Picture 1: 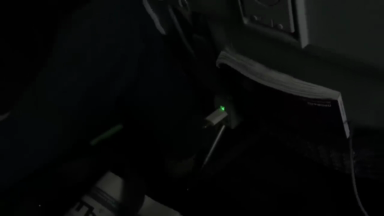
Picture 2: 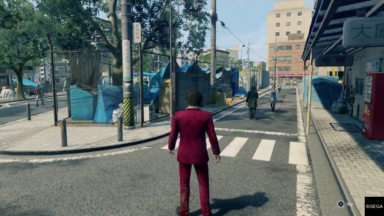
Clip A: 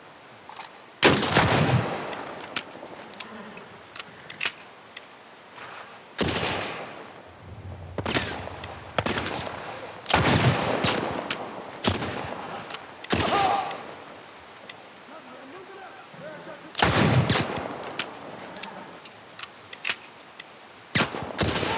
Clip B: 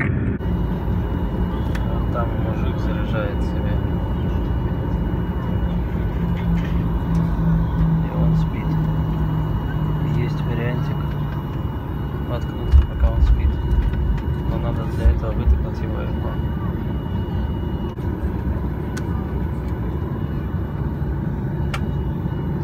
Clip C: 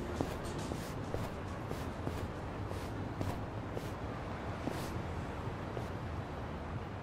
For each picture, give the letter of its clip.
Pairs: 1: B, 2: C